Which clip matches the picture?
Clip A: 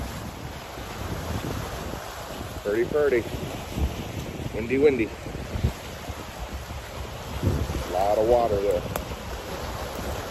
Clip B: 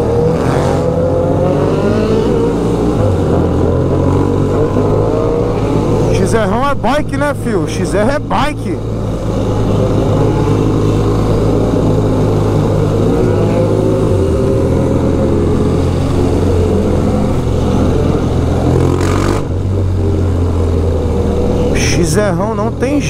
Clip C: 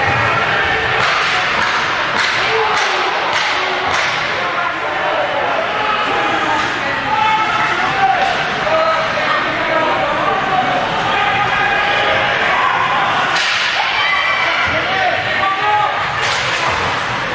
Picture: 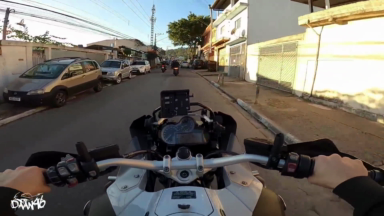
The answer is B